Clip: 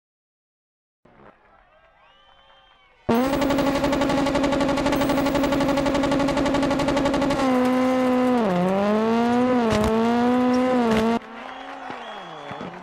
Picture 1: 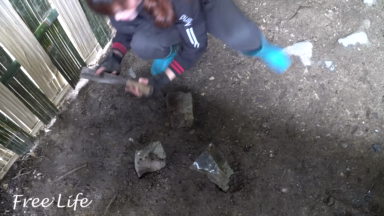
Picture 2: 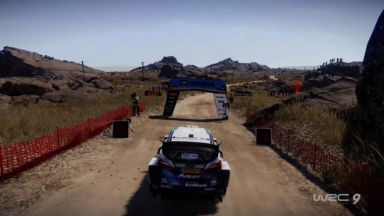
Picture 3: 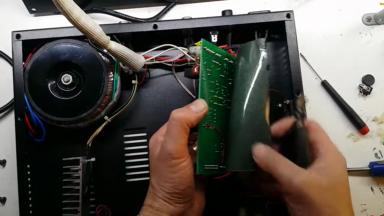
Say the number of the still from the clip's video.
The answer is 2